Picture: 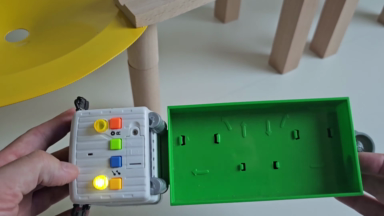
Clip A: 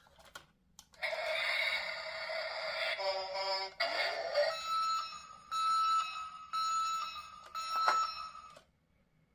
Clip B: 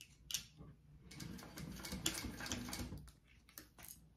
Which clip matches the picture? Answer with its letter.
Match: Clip A